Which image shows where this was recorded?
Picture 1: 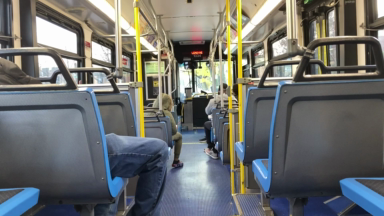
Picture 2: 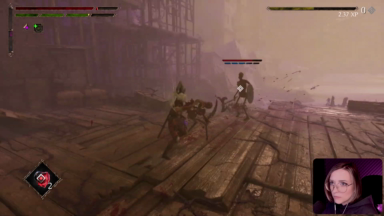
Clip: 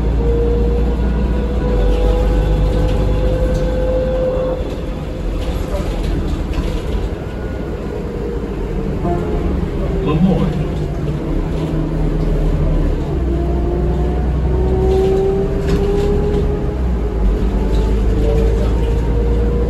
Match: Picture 1